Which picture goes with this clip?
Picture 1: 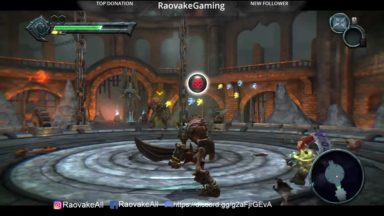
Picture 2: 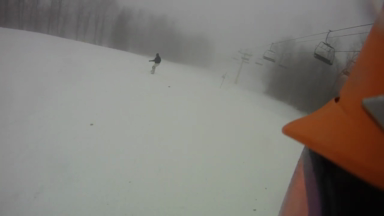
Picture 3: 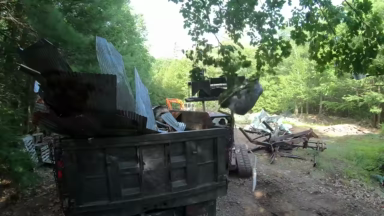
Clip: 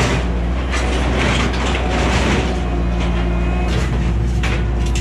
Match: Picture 3